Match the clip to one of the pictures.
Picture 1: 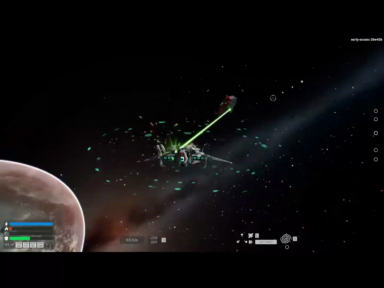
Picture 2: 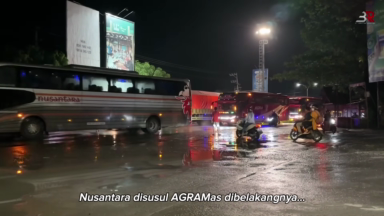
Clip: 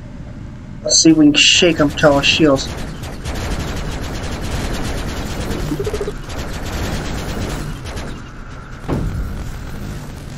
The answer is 1